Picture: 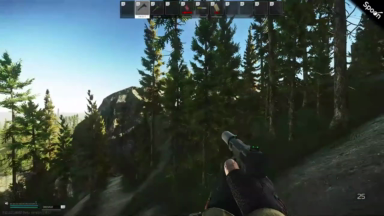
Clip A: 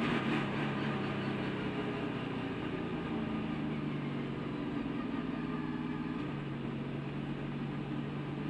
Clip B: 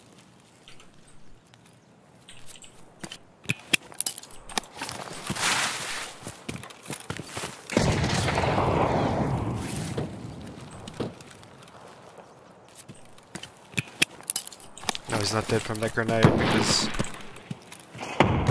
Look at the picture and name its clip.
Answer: B